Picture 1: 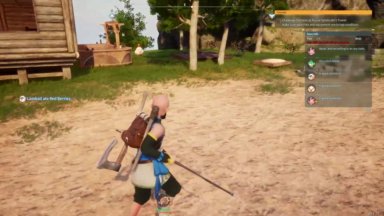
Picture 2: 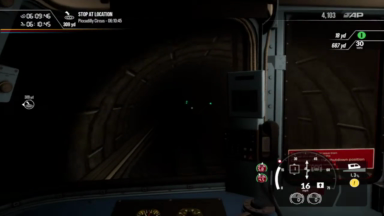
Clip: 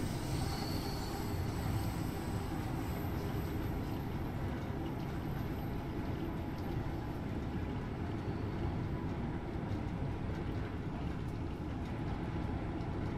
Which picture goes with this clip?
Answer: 2